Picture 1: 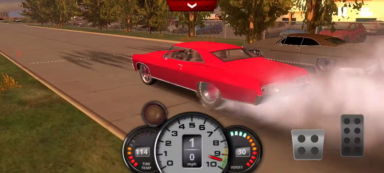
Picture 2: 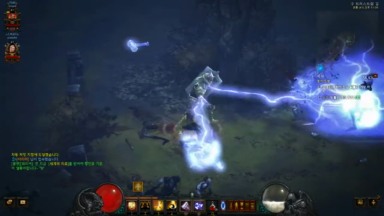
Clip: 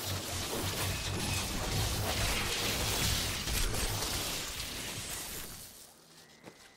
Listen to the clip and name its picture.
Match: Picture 2